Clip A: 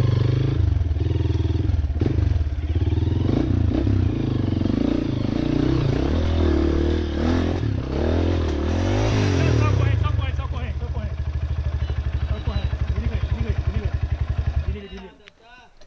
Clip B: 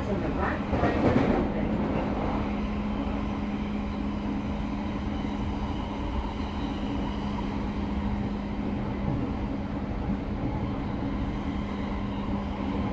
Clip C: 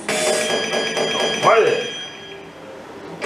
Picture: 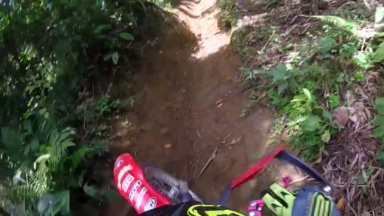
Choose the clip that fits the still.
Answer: A